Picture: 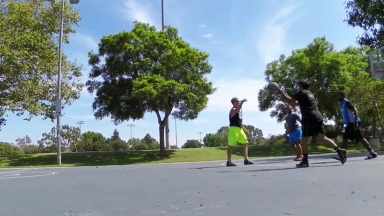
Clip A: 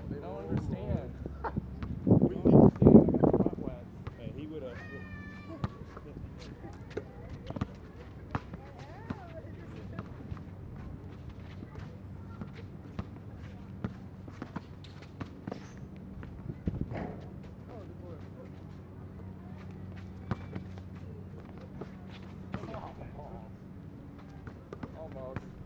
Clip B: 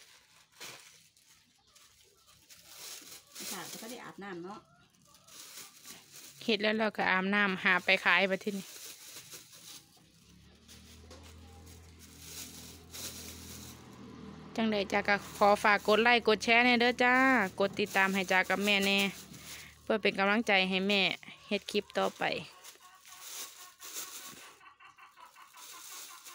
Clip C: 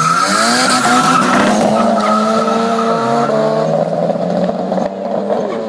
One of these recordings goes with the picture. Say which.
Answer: A